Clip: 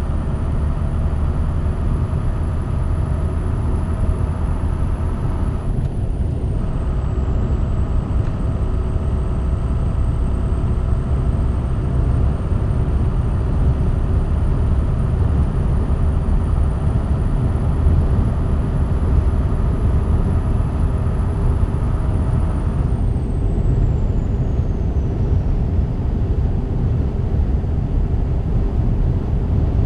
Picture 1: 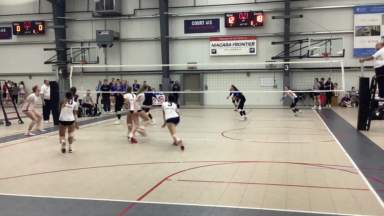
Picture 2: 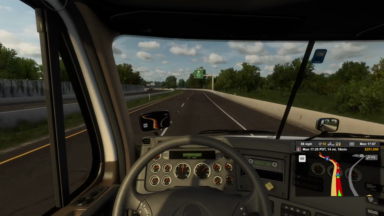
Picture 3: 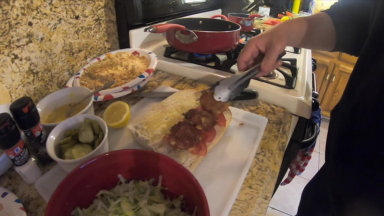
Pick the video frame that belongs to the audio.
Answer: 2